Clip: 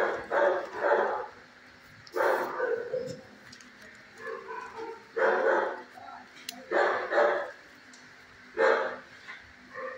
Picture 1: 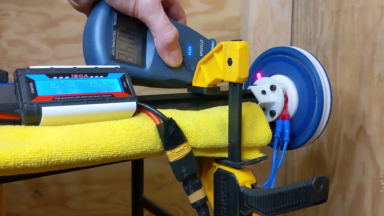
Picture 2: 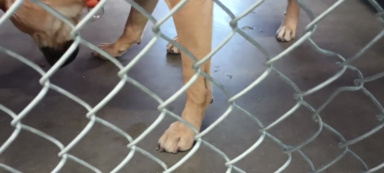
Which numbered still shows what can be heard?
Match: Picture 2